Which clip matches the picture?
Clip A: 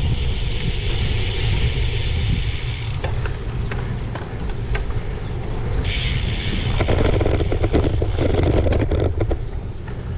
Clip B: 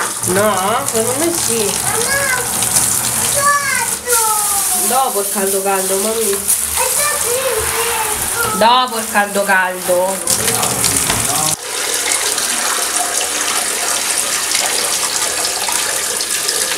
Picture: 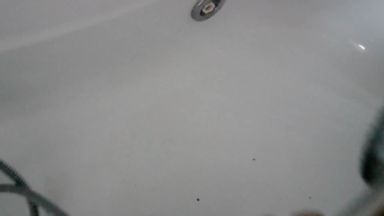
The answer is B